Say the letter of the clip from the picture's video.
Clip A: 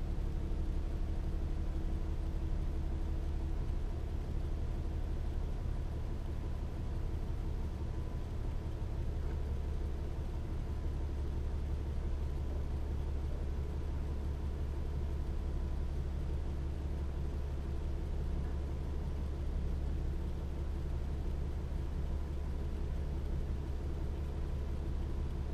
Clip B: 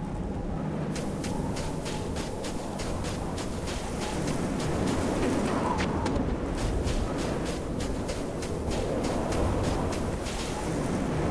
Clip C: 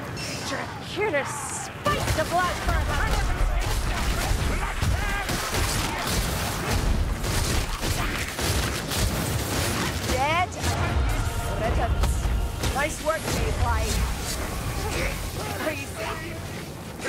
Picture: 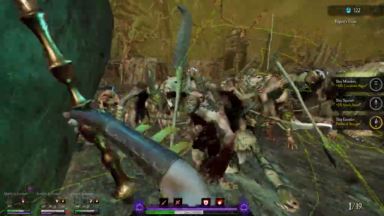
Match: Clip C